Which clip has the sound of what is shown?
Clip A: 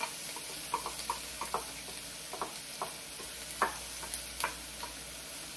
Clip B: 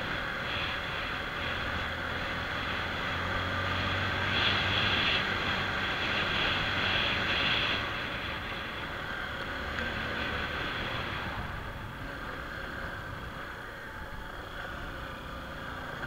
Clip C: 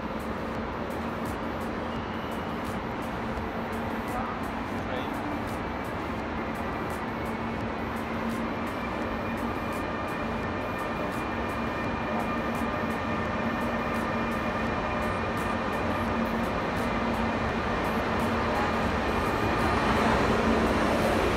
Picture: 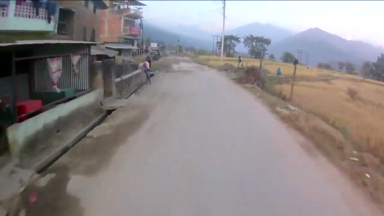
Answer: B